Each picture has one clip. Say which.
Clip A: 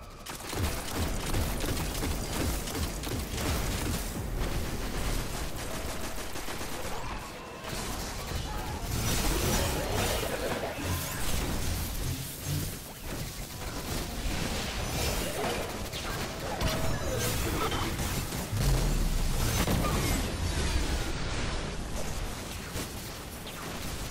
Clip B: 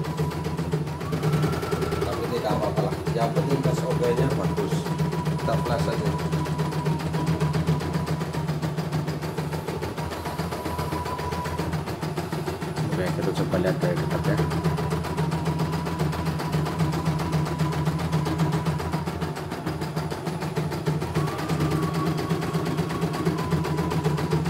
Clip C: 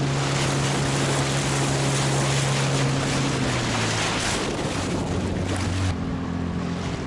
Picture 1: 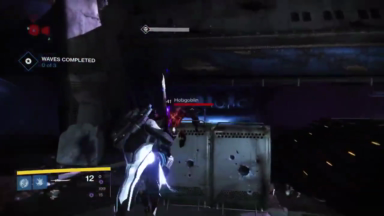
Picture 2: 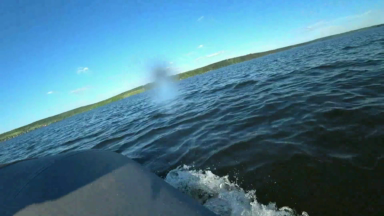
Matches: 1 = A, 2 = C